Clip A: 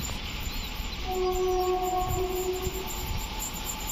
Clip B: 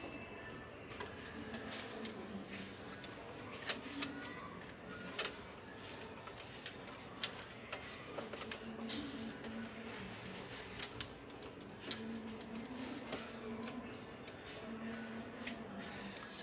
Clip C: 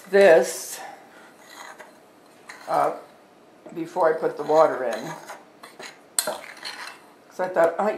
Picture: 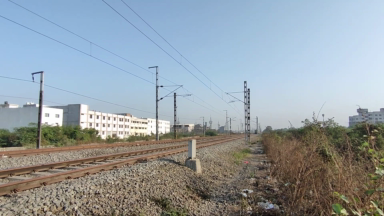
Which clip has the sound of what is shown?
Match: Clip A